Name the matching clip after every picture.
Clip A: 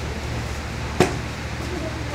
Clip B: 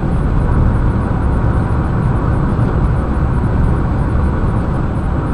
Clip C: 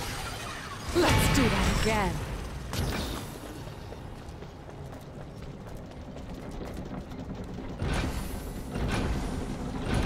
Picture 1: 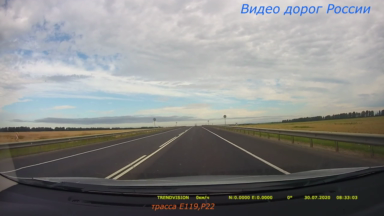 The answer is B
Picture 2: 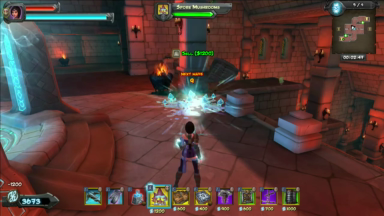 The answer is C